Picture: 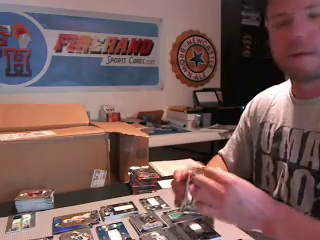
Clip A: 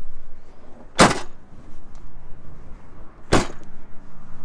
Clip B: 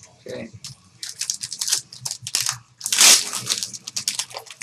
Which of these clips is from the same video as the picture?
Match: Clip B